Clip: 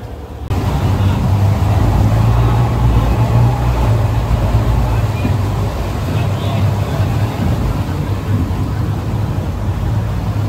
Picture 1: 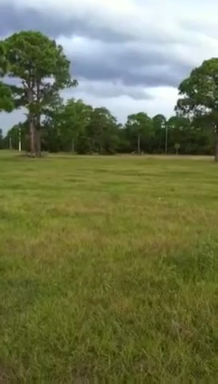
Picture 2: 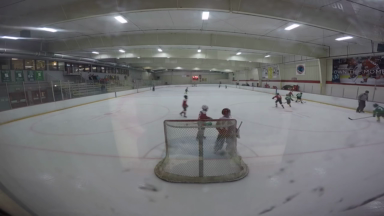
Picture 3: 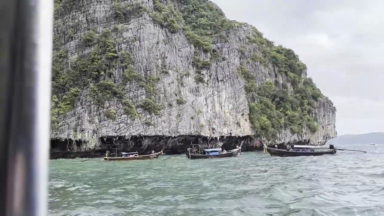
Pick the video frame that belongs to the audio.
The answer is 3